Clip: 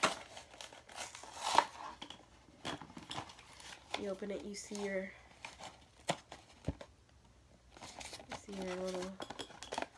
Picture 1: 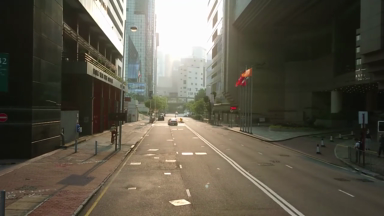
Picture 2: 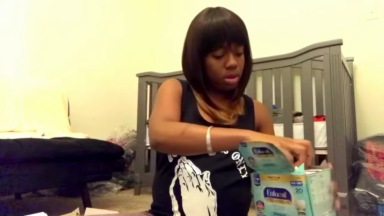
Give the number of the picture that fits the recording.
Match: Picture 2